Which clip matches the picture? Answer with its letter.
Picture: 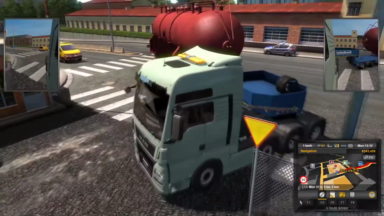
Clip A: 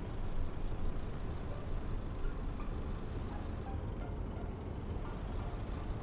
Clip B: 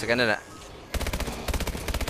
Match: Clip A